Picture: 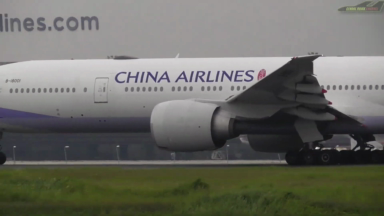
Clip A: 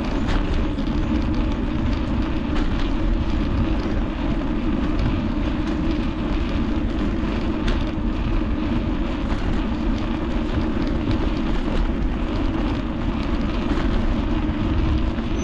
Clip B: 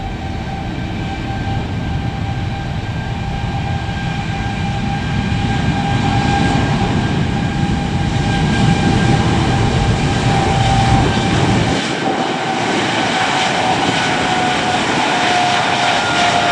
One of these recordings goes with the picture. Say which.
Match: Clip B